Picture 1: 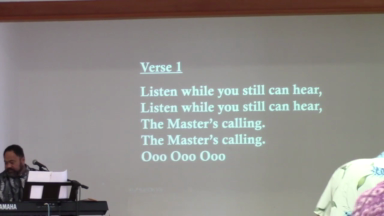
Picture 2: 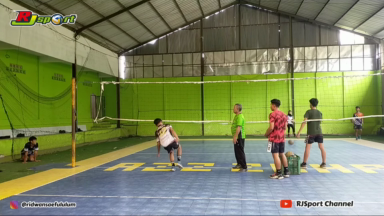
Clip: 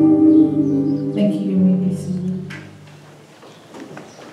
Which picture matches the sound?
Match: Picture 1